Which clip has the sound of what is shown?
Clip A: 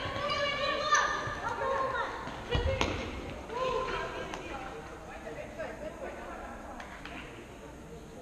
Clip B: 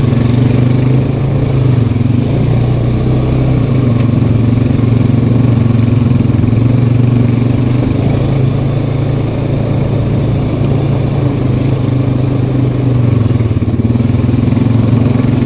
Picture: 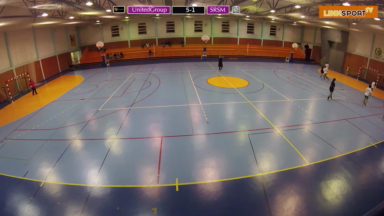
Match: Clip A